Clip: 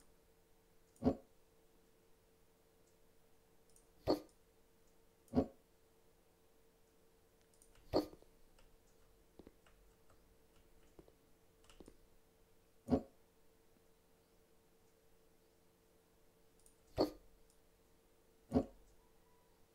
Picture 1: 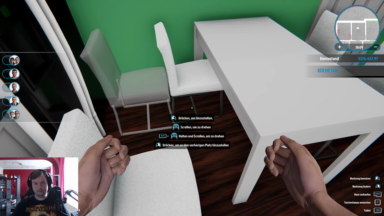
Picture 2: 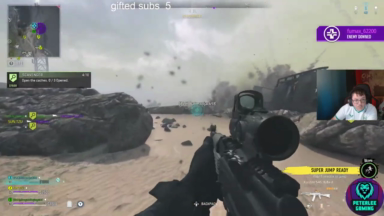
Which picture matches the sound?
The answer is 1